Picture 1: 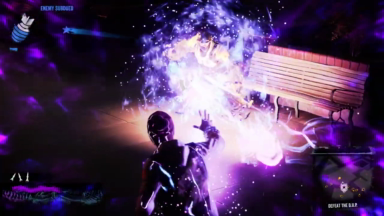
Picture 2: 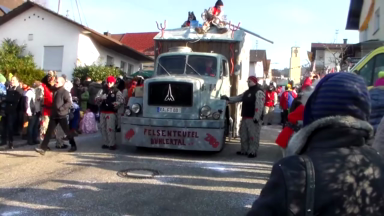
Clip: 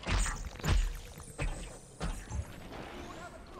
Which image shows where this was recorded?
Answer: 1